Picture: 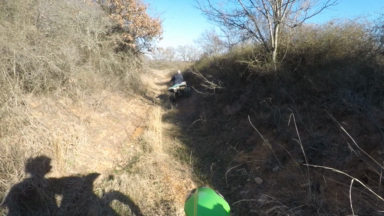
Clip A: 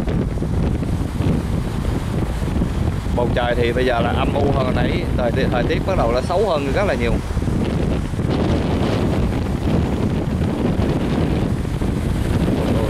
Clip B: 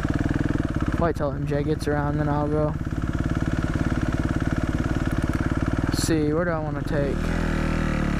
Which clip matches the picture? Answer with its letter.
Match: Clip B